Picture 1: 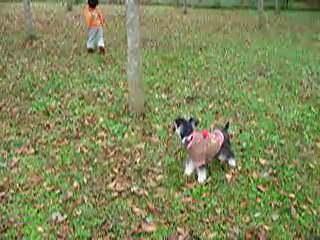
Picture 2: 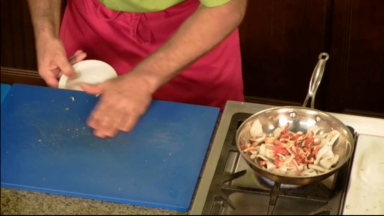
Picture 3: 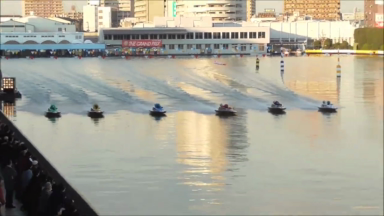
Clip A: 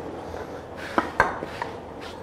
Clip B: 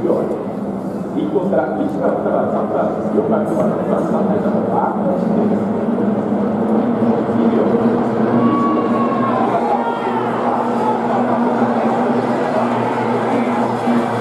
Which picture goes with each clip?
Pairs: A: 2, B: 3